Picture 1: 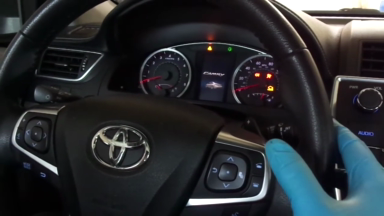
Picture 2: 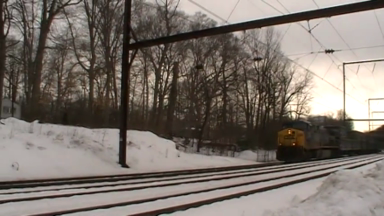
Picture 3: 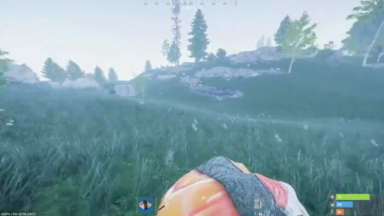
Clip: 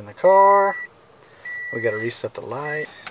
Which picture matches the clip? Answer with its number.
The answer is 1